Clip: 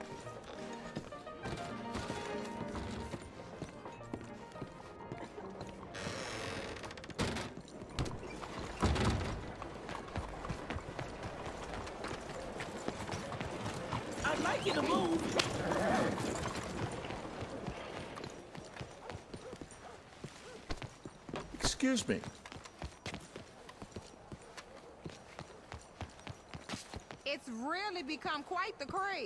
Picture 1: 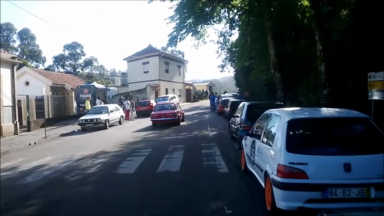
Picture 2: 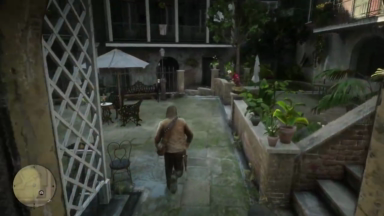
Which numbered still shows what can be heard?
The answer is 2